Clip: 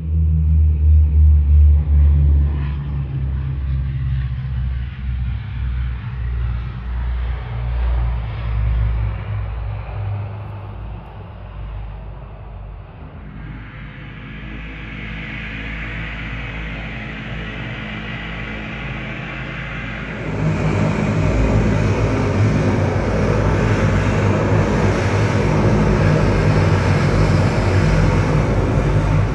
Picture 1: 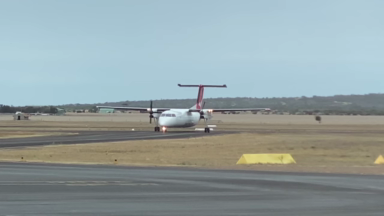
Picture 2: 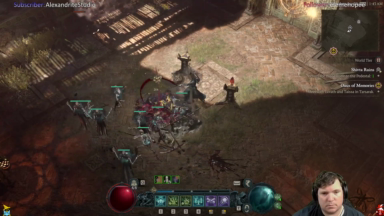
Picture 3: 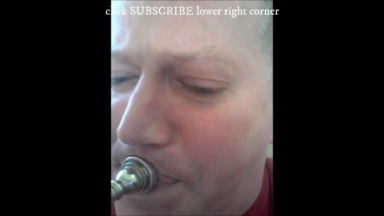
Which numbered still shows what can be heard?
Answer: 1